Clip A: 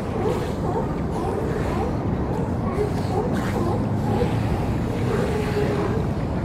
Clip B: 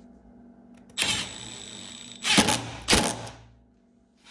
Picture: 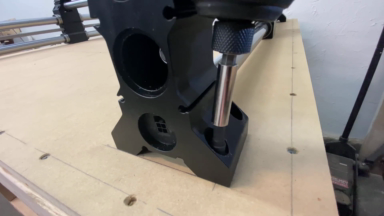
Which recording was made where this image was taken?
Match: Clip B